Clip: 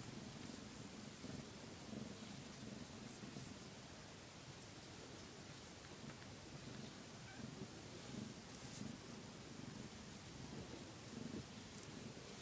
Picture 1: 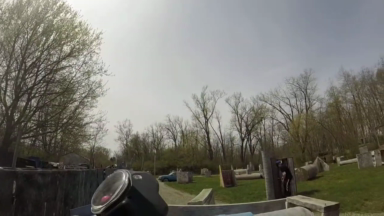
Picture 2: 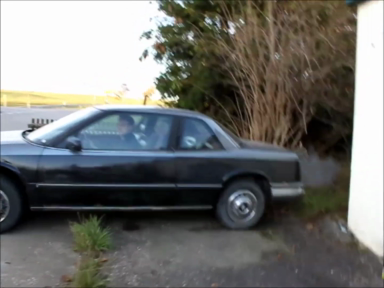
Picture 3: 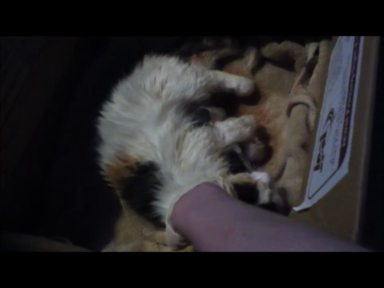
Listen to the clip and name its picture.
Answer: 3